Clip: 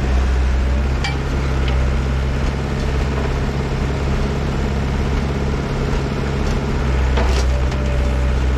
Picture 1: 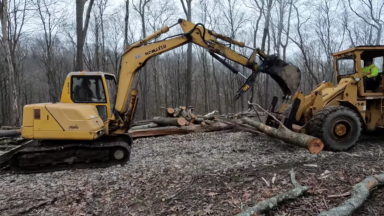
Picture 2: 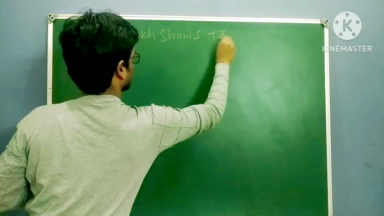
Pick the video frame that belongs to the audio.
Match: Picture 1